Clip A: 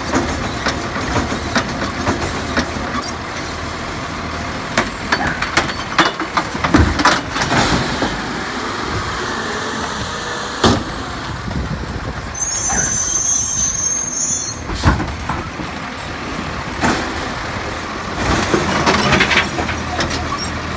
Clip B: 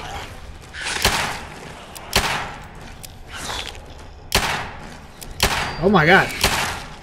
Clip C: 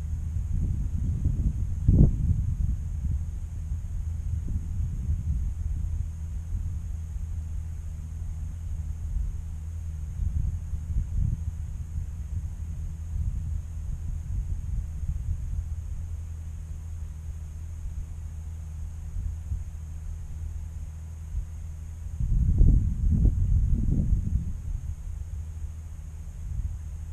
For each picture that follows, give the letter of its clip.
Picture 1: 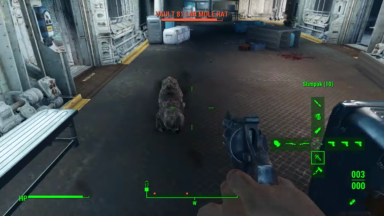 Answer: B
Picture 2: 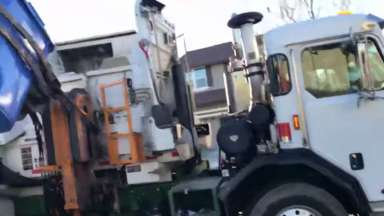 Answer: A